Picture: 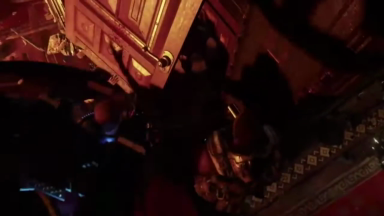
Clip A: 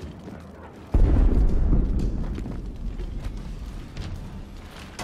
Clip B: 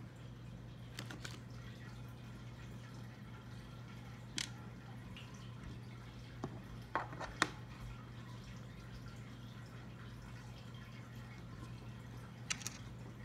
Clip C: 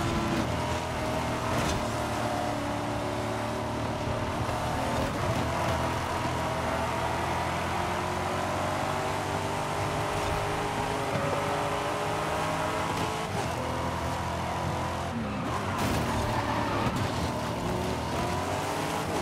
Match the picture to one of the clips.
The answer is A